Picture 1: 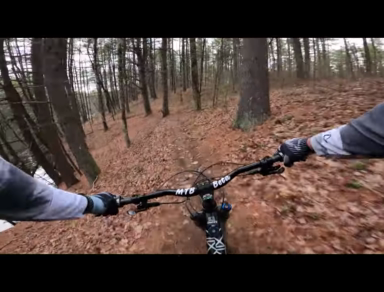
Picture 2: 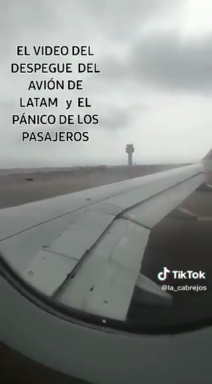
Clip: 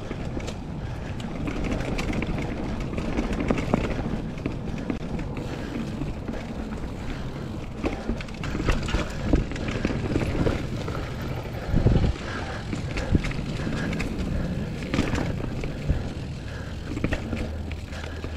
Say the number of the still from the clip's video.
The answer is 1